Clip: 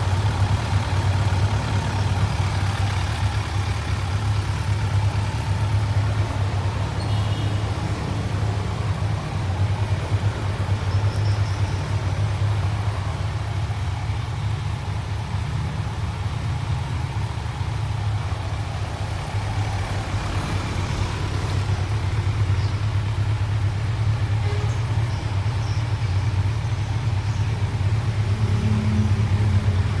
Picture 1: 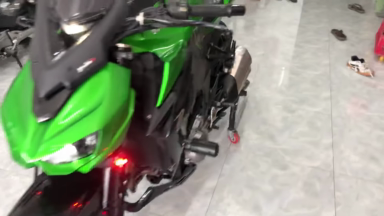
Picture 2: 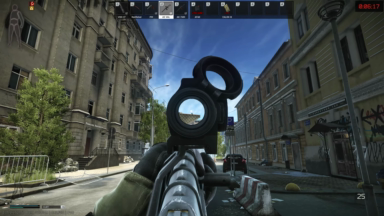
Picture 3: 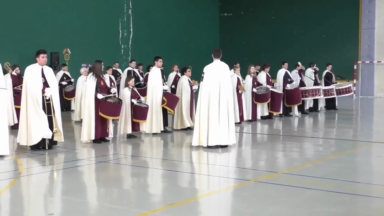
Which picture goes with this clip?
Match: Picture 1